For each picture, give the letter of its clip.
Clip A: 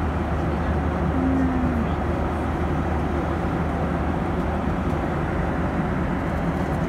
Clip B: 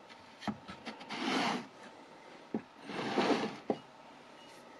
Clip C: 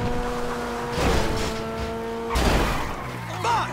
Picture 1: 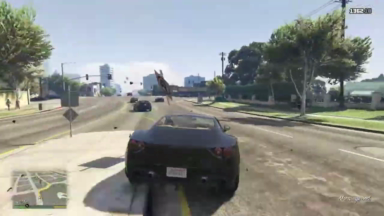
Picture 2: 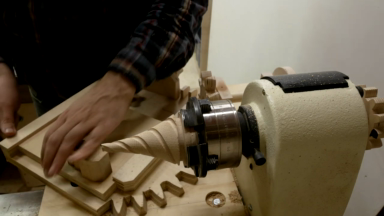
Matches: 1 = C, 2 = B